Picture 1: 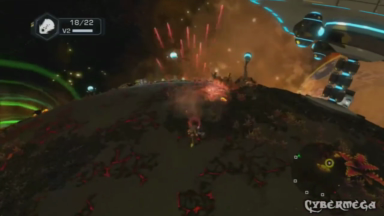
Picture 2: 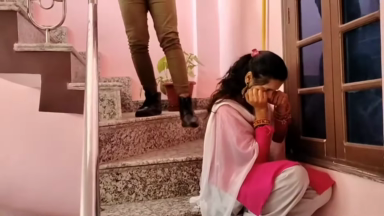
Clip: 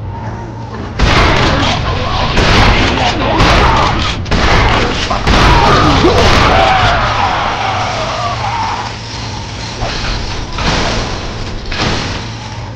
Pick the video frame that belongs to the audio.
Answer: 1